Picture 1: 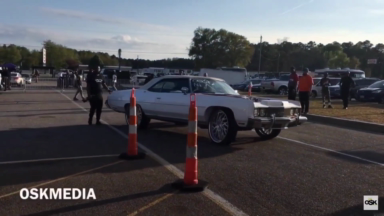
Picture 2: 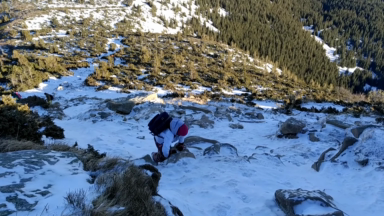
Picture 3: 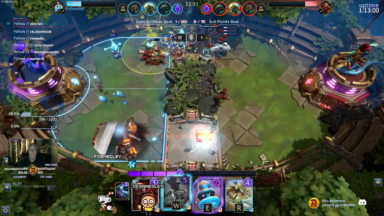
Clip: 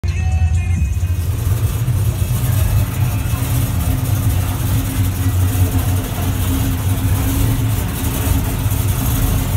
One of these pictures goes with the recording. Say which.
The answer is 1